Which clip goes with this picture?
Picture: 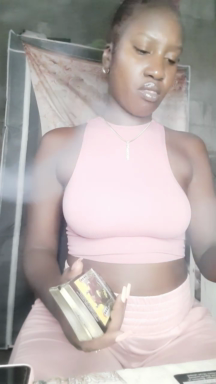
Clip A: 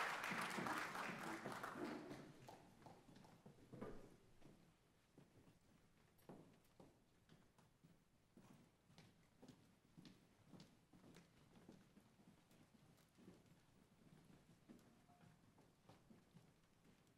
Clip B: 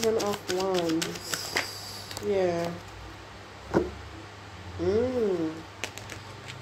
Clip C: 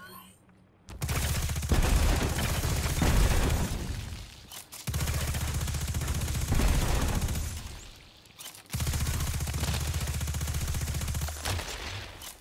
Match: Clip B